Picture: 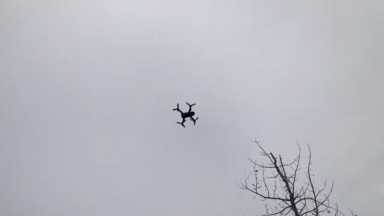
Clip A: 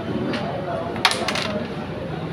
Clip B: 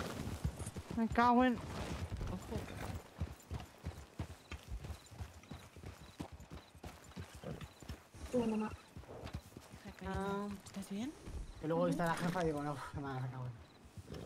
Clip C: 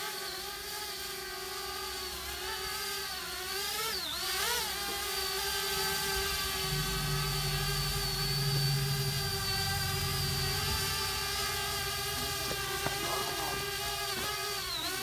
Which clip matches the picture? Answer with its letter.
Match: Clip C